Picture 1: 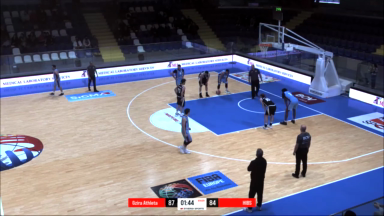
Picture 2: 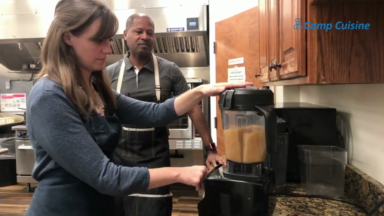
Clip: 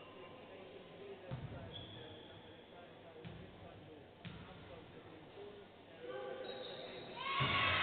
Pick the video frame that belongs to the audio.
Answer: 1